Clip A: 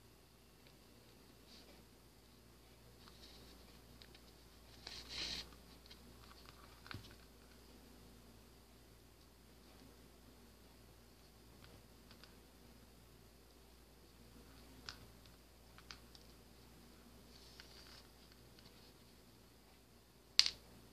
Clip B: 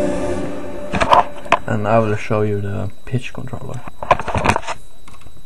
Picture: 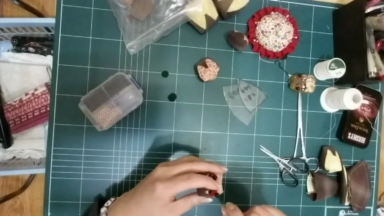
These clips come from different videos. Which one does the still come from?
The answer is A